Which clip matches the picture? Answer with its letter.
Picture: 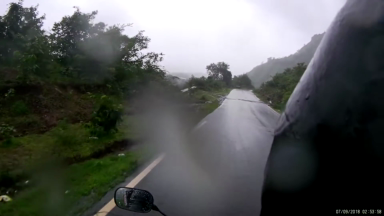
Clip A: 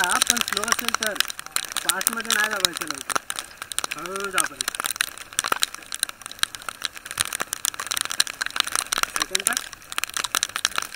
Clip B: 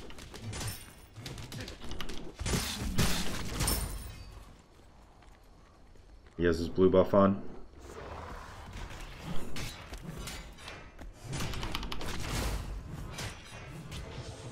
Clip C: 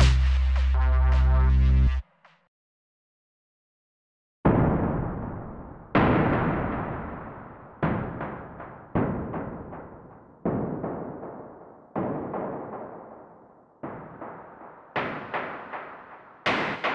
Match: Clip A